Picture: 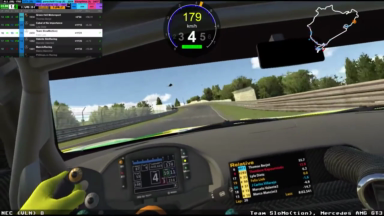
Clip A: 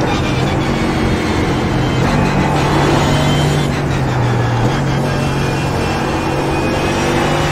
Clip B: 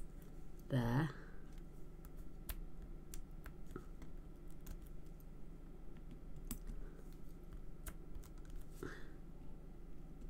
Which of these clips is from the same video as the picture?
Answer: A